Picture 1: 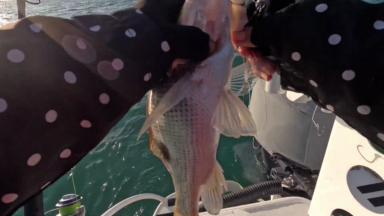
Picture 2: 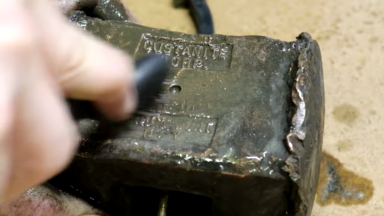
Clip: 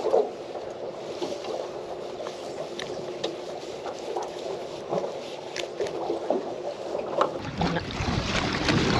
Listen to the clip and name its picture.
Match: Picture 1